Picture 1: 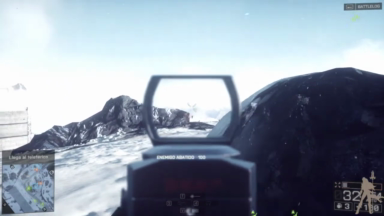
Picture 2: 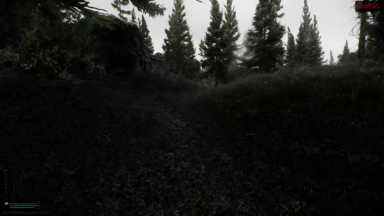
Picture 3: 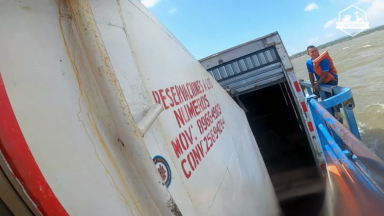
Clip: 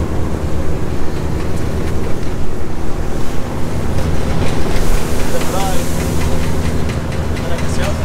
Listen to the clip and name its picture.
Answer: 3